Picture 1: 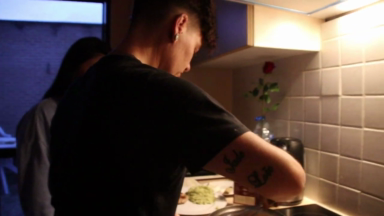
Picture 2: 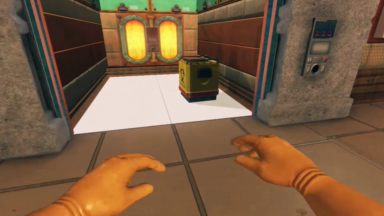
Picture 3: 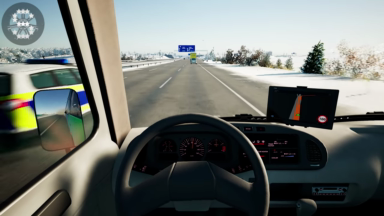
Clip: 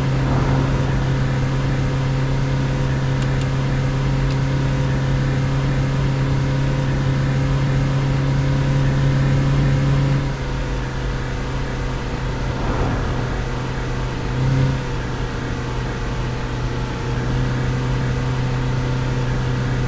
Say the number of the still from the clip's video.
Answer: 3